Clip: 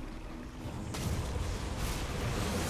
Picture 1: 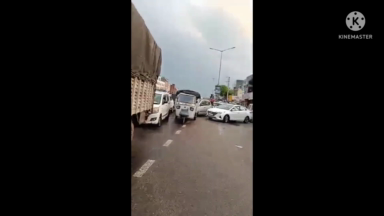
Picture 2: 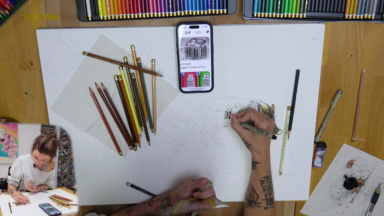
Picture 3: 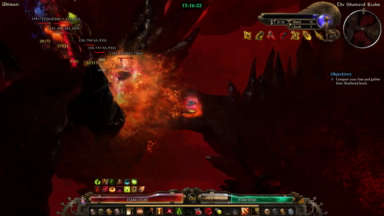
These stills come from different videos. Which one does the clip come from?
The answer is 3